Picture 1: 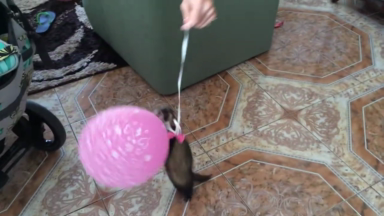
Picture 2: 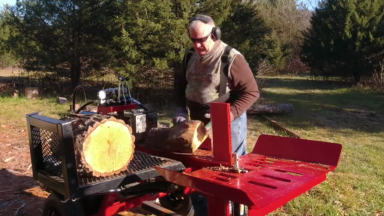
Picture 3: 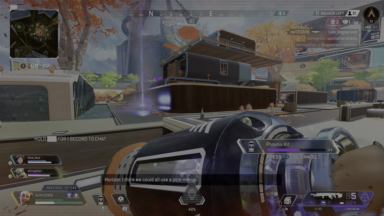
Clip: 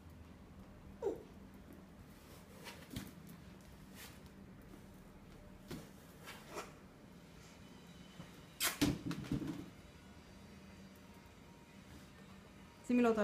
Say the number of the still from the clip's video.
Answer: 1